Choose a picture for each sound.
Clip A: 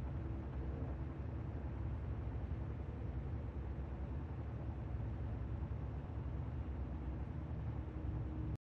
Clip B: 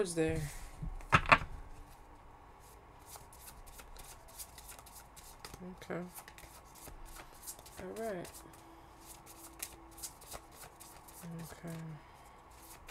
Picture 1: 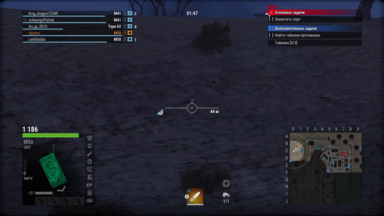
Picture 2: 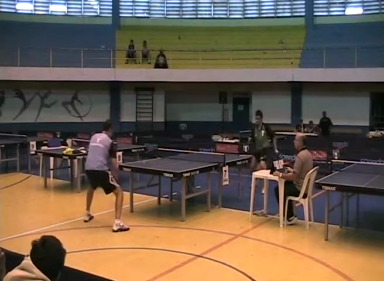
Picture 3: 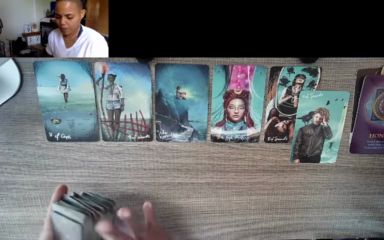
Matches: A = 1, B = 3